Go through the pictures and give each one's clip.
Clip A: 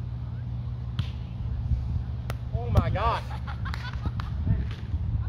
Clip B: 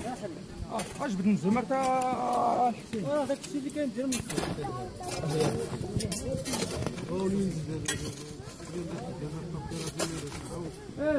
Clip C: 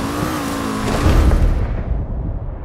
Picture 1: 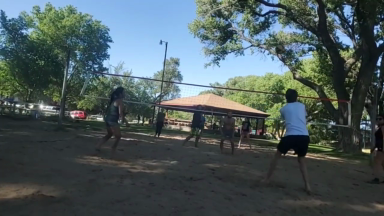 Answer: A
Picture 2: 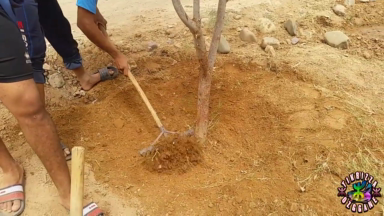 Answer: B